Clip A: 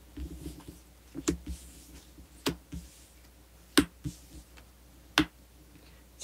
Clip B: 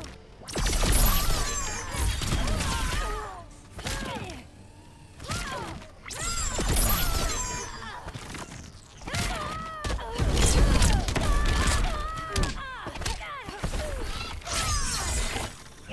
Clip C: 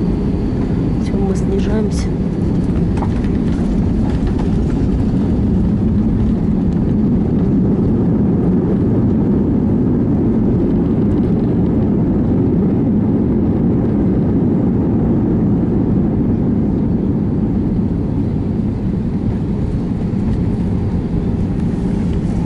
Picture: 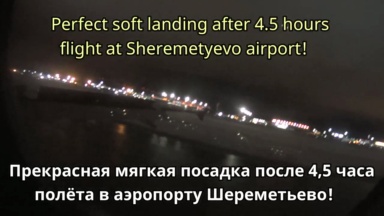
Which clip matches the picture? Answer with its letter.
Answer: C